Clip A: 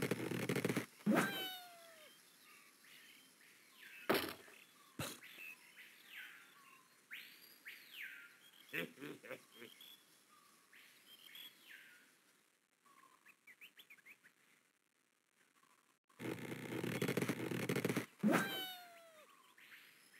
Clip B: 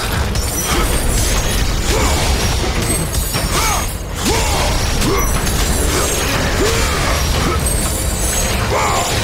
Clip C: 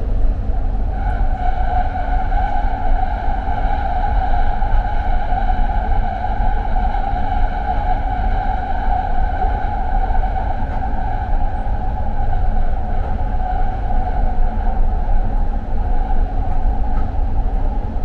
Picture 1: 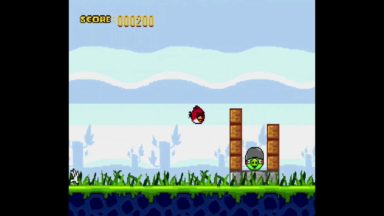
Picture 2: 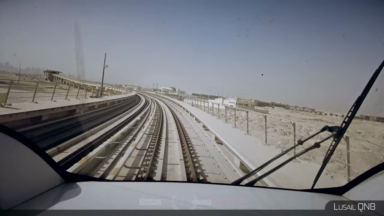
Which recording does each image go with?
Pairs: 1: A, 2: C